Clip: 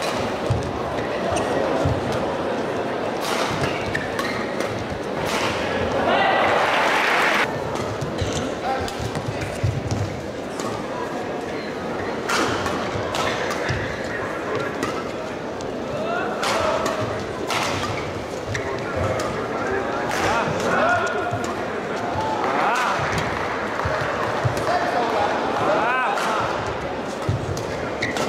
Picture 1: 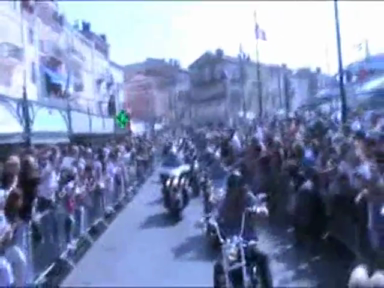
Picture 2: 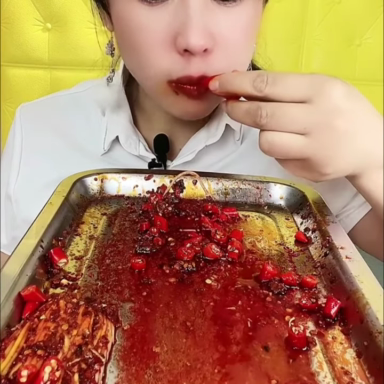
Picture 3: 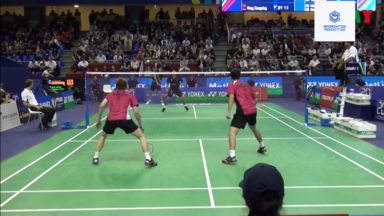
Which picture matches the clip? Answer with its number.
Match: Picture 3